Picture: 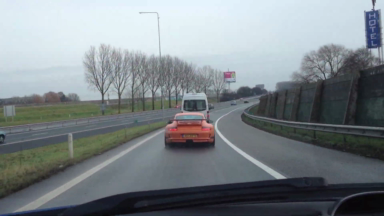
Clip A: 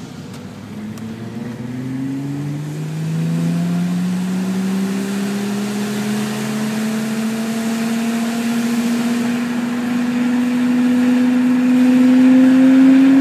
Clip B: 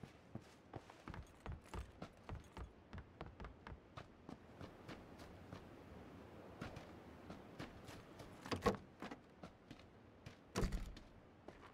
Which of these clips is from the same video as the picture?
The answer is A